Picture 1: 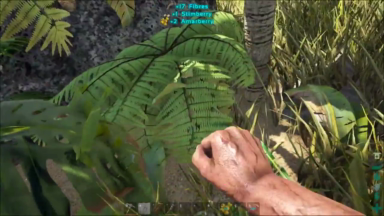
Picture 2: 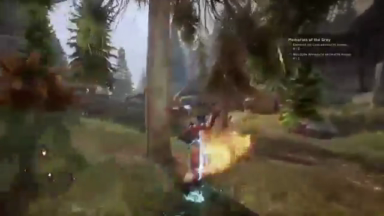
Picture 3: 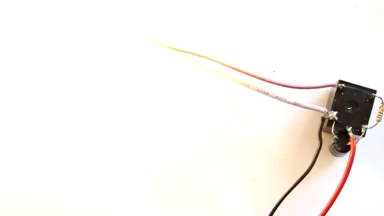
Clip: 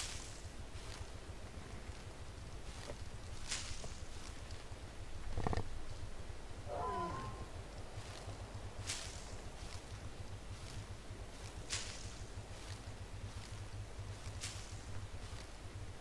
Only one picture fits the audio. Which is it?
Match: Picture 1